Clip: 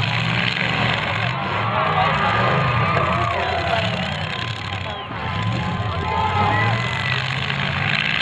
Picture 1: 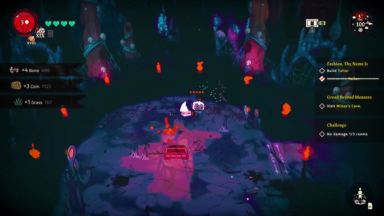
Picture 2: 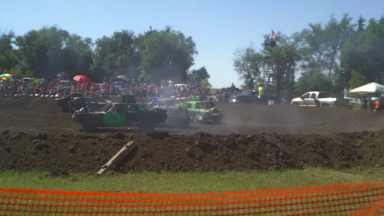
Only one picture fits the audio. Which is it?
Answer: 2